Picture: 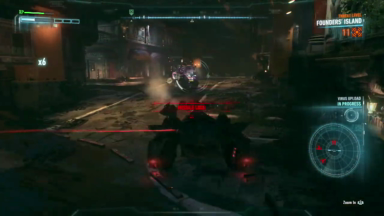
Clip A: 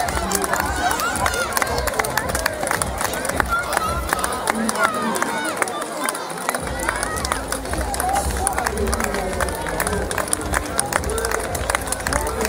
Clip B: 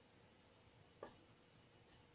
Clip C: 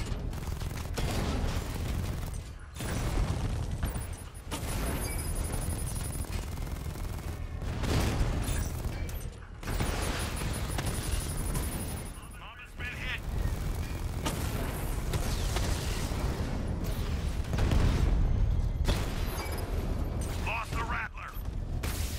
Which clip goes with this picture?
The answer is C